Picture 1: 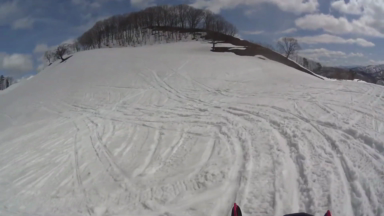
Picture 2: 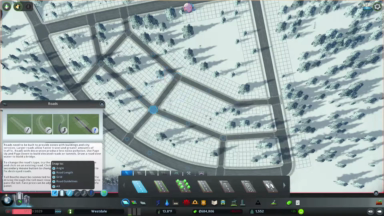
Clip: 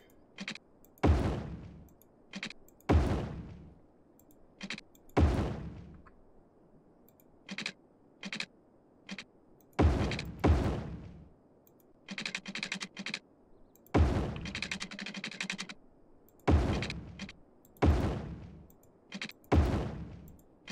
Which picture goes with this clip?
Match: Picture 2